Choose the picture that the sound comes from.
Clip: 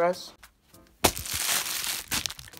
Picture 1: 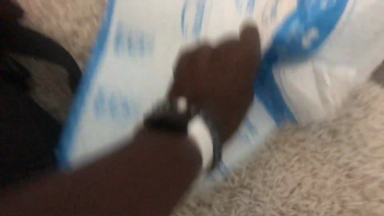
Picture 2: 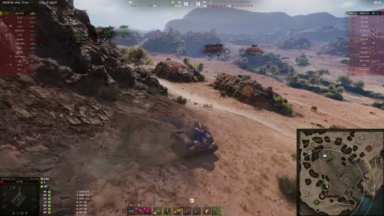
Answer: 1